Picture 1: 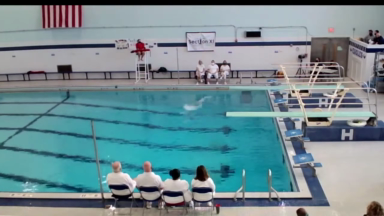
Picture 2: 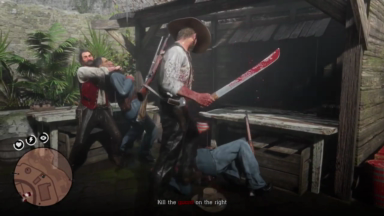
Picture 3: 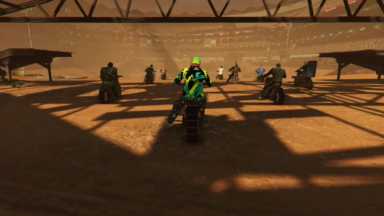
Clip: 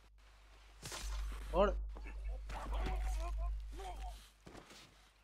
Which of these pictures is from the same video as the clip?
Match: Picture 2